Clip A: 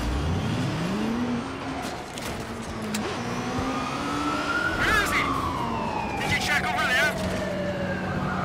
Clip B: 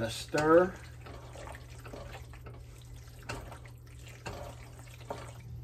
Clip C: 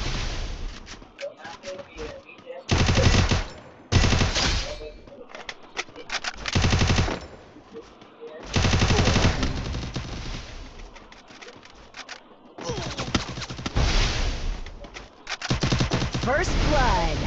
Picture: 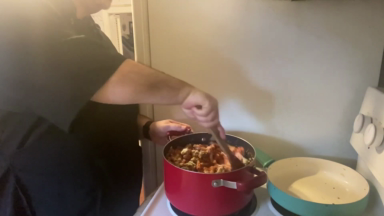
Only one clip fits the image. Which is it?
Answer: B